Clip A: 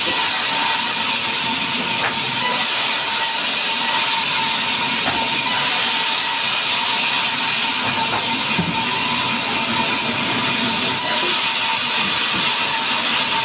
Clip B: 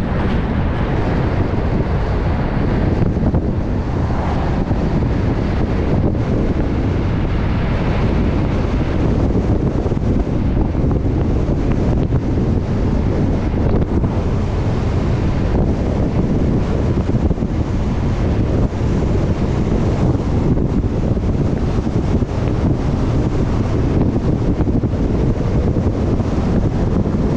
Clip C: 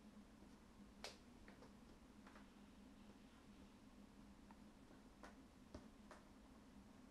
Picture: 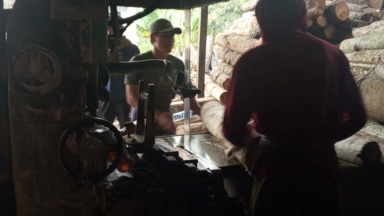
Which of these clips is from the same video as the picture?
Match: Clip A